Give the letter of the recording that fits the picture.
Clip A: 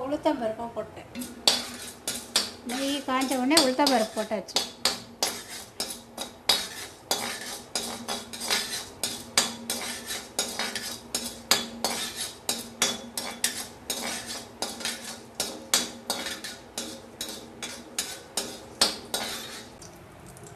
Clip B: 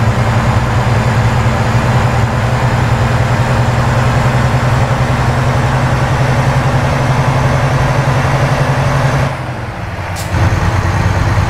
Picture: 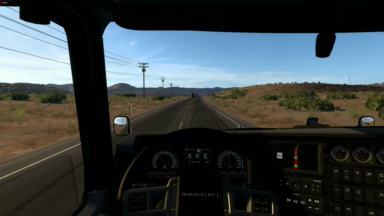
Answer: B